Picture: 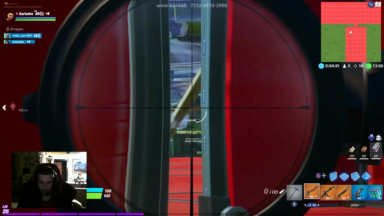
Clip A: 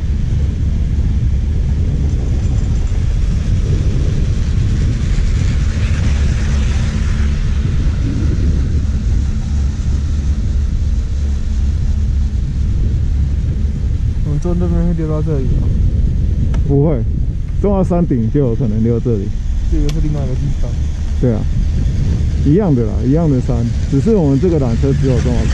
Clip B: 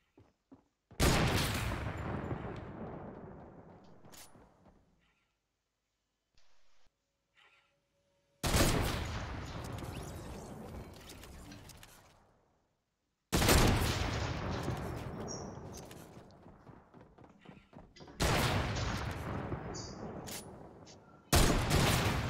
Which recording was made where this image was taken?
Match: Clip B